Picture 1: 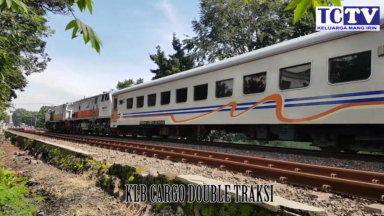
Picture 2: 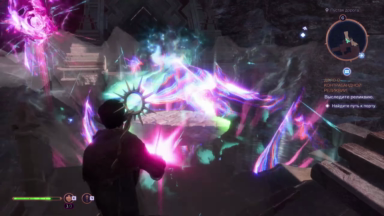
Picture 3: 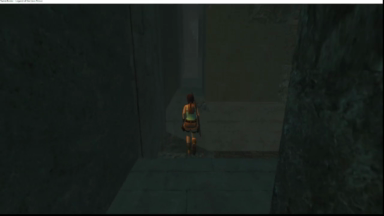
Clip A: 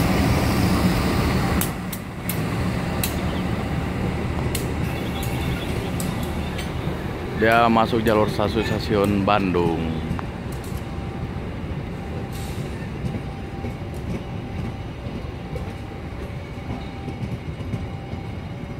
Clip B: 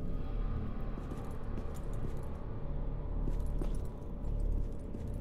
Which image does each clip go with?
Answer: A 1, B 3